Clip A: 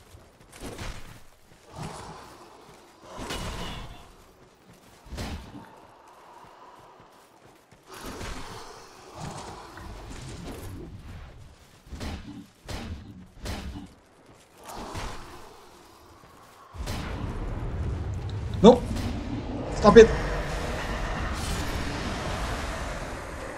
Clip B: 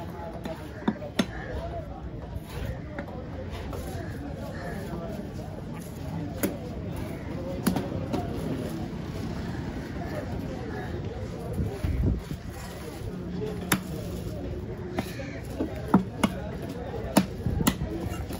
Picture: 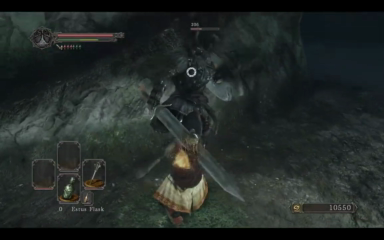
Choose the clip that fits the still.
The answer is A